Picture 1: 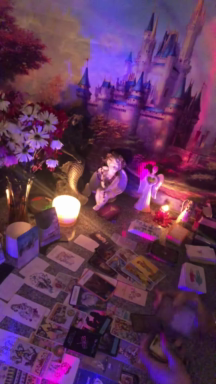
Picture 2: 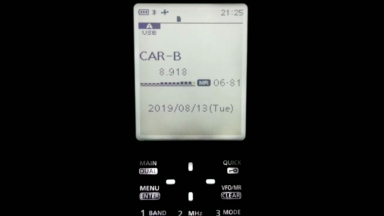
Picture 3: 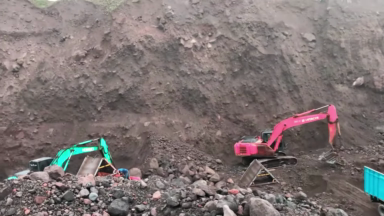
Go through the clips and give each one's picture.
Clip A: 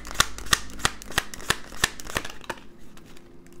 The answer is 1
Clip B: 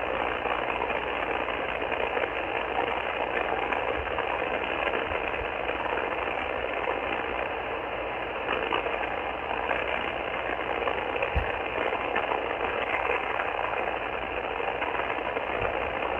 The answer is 2